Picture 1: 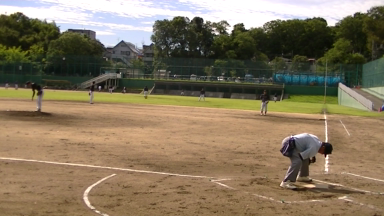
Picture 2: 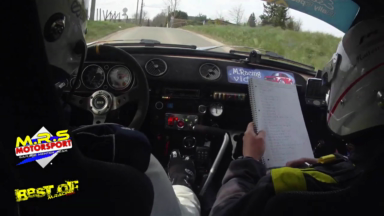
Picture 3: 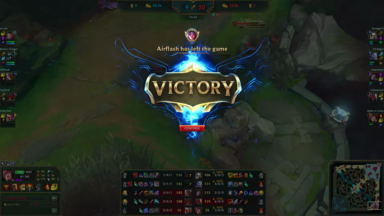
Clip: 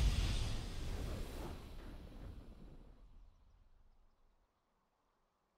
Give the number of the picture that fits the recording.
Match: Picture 3